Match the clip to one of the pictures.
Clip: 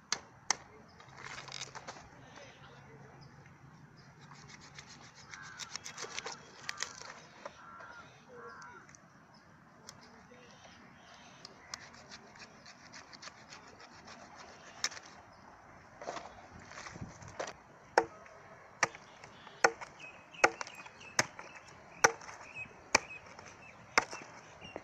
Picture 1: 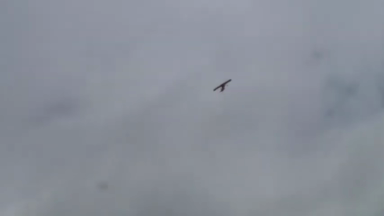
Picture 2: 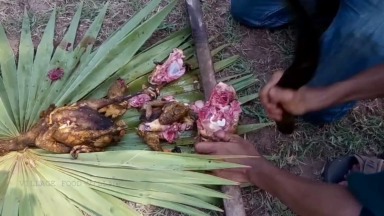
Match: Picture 2